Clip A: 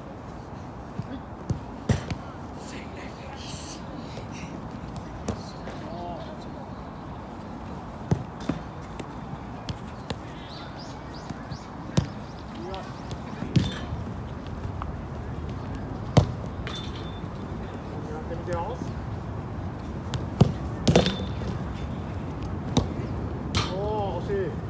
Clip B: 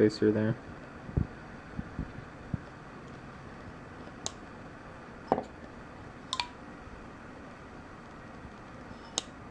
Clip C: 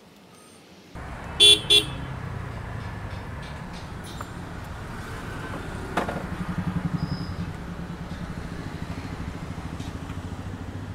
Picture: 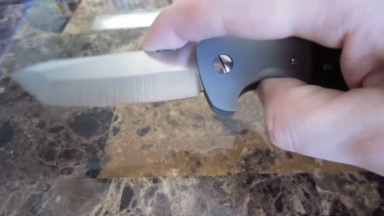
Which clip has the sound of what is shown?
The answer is B